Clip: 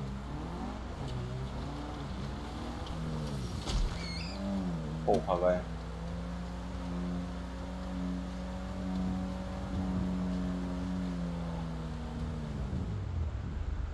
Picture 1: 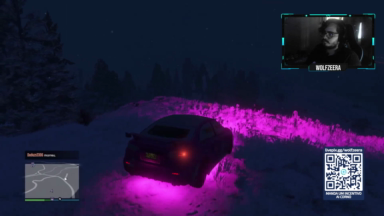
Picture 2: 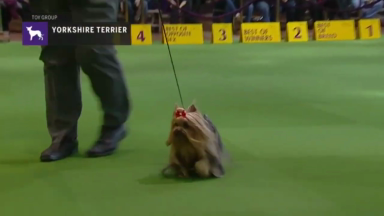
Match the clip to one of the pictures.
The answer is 1